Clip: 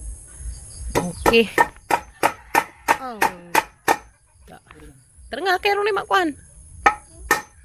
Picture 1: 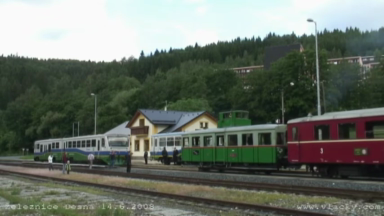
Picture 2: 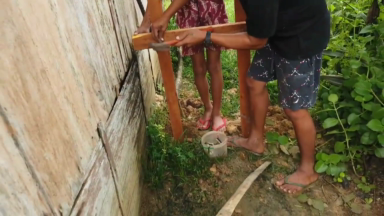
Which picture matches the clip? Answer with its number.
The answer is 2